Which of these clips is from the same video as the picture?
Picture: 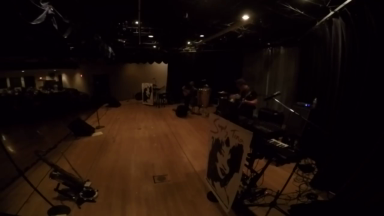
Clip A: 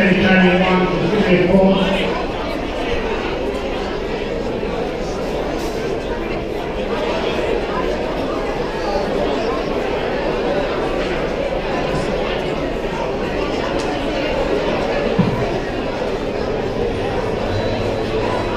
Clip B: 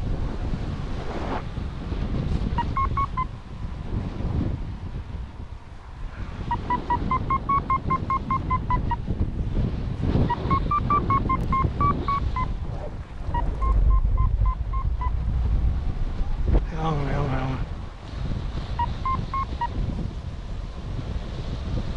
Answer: A